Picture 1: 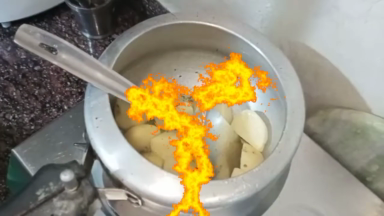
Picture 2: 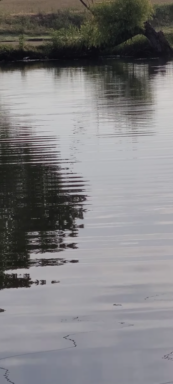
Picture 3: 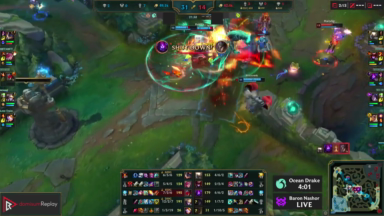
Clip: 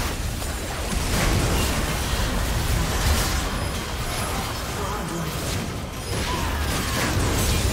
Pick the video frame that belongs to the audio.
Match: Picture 3